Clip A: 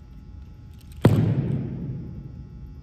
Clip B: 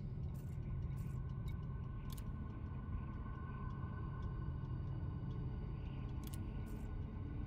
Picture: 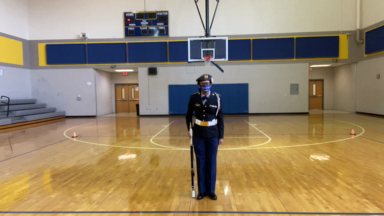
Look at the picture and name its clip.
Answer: A